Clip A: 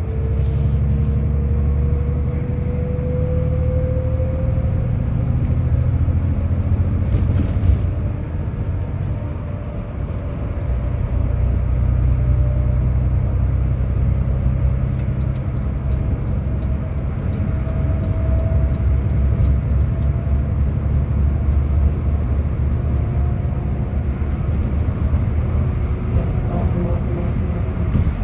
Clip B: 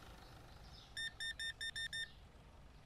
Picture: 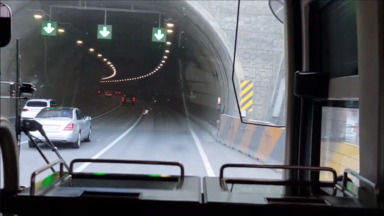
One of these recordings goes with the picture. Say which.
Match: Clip A